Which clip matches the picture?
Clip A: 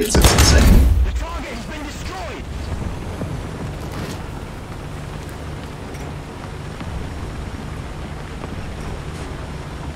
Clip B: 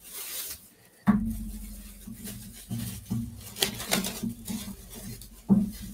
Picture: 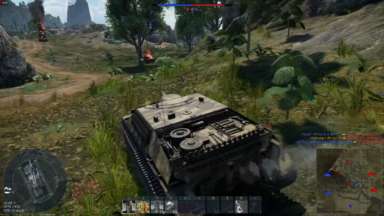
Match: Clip A